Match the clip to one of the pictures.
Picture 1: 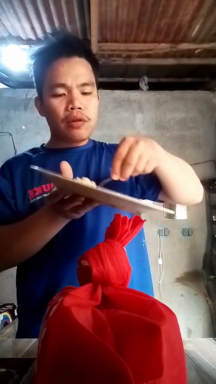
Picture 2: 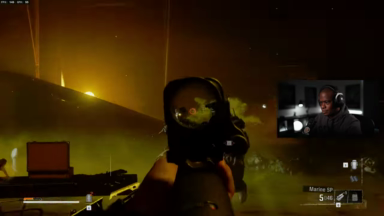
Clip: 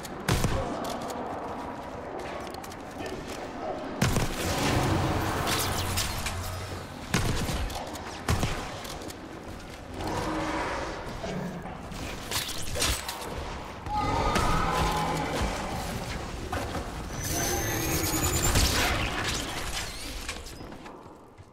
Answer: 2